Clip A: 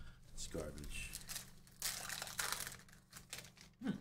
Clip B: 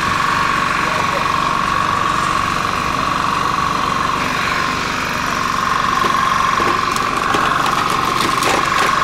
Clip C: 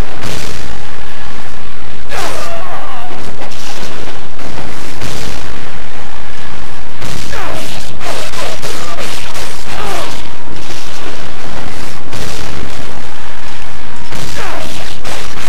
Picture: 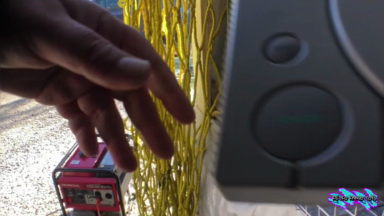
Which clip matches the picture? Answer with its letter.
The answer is B